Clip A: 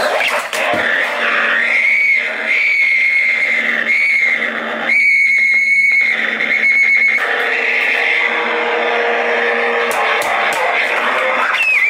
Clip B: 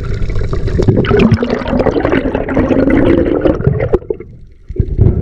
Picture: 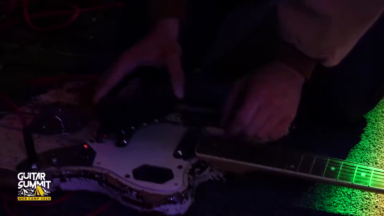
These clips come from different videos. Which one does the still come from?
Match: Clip A